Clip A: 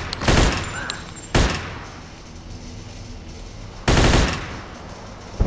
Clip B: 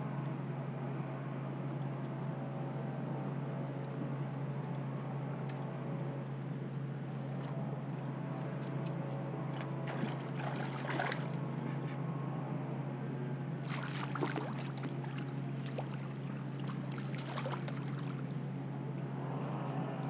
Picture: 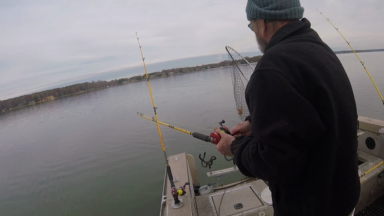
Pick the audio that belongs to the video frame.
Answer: B